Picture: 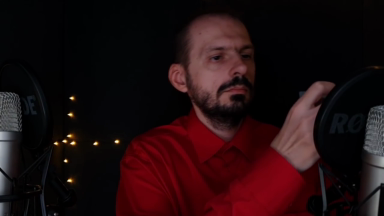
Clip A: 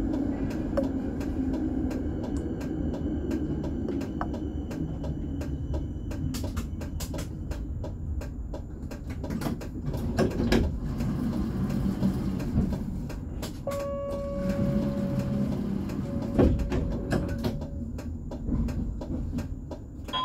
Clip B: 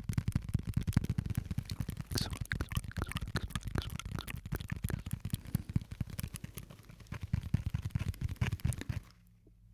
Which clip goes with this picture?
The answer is B